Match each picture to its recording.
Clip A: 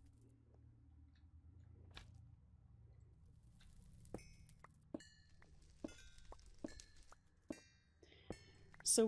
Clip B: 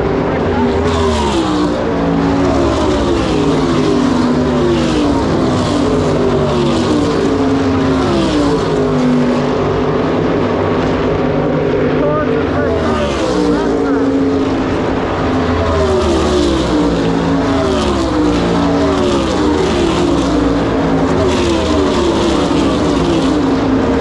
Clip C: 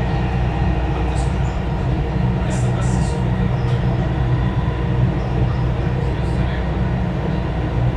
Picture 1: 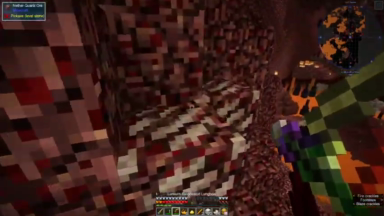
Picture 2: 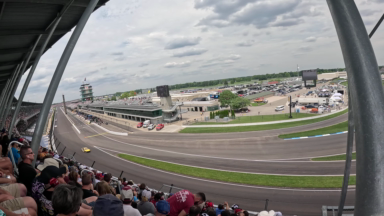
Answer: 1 A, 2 B